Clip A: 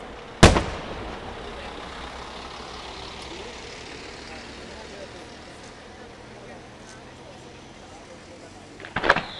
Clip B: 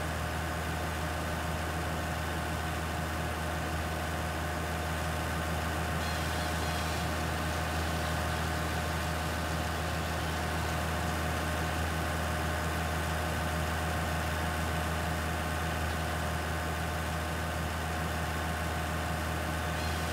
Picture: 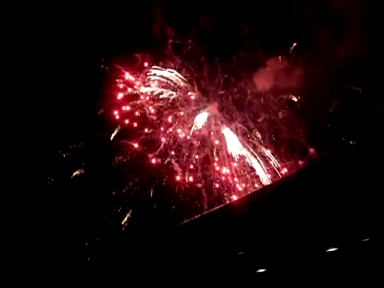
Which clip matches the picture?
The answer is A